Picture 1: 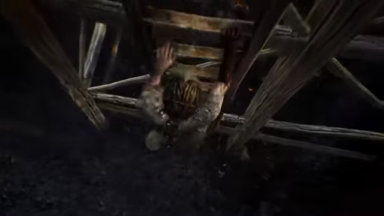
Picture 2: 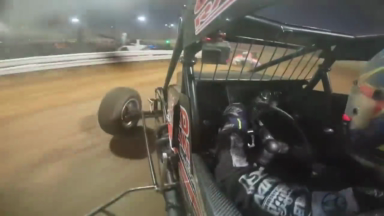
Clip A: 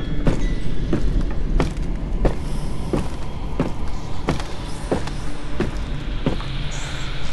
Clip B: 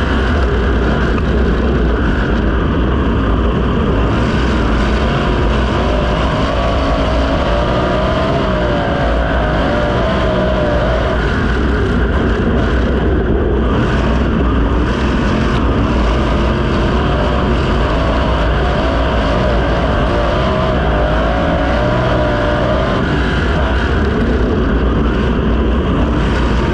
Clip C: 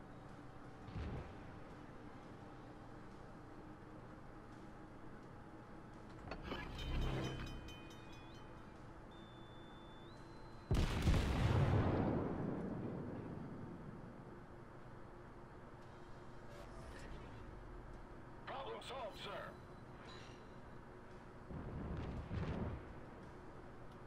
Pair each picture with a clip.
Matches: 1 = A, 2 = B